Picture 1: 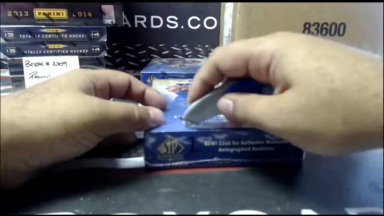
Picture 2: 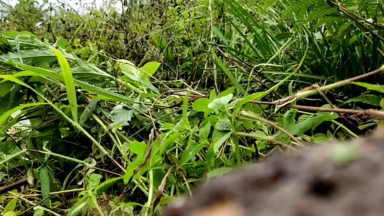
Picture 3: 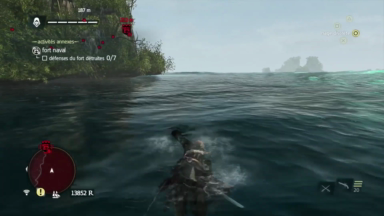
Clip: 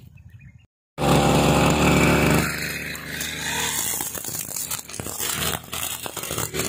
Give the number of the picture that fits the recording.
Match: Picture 2